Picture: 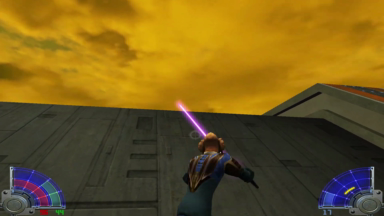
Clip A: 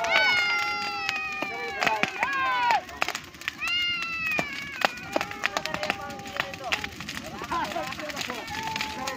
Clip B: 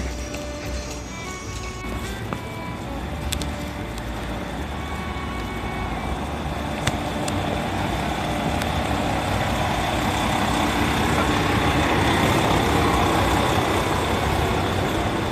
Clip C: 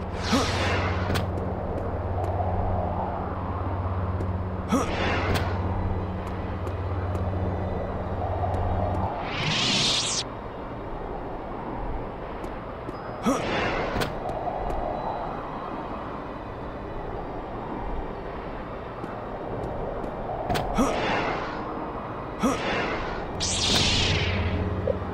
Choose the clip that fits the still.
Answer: C